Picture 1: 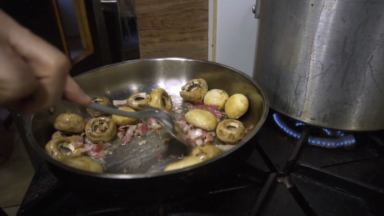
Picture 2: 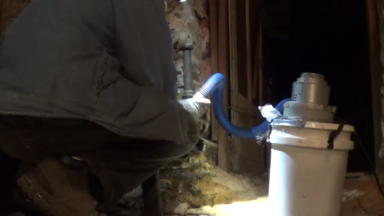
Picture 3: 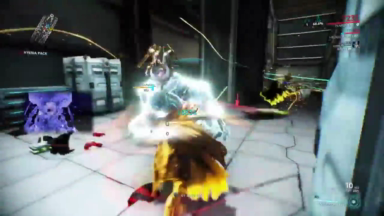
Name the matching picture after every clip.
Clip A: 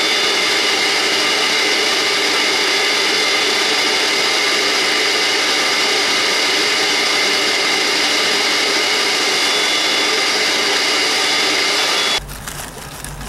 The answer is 2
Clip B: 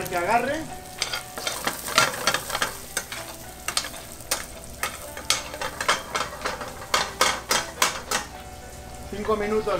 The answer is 1